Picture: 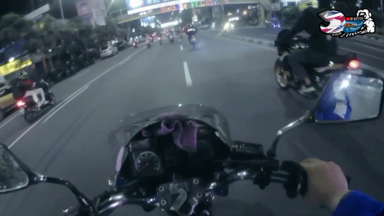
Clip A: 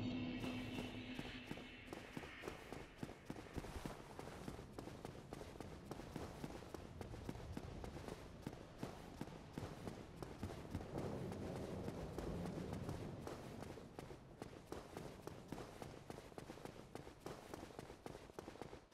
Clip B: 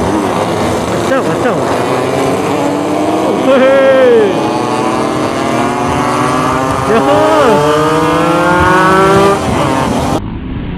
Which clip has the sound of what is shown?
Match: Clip B